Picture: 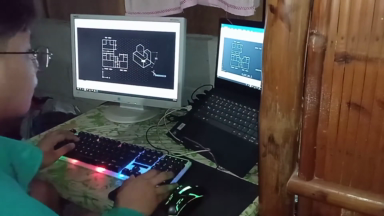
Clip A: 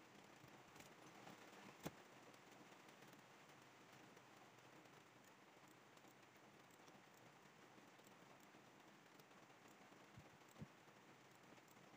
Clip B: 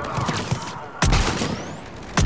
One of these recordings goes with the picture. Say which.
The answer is A